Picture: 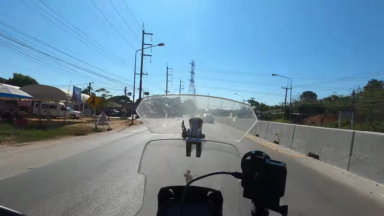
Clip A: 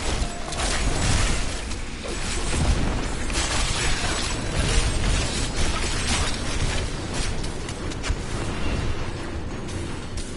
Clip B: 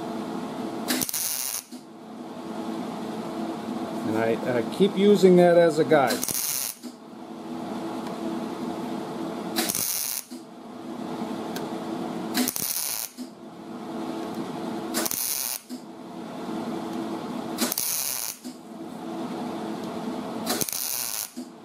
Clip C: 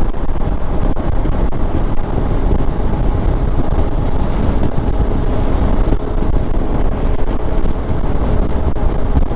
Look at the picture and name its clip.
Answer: C